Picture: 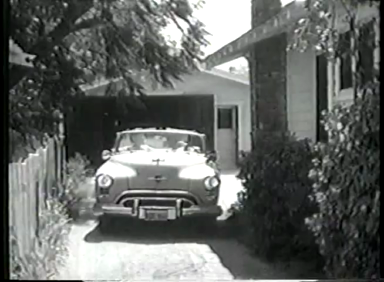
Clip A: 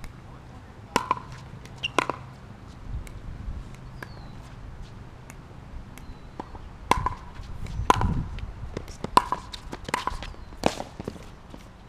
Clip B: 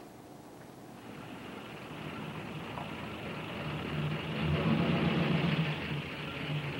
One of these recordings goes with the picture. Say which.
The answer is B